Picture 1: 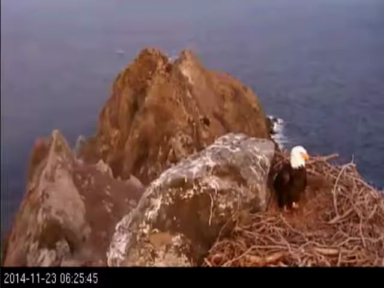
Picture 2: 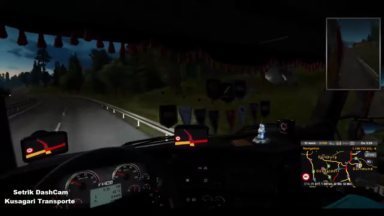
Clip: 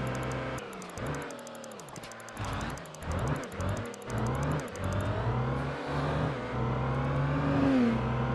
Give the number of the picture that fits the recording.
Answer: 2